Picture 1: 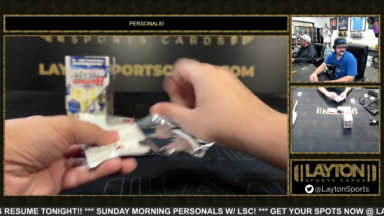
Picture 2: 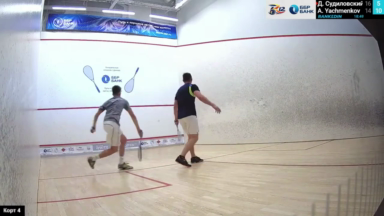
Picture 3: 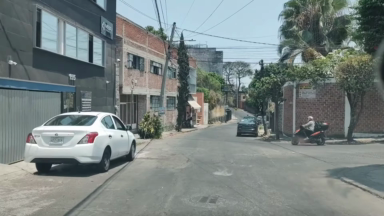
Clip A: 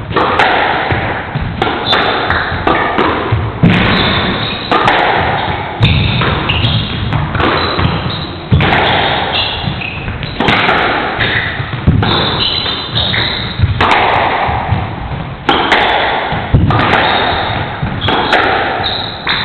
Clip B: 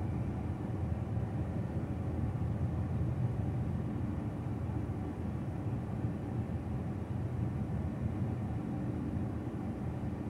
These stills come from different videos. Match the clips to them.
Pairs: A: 2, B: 3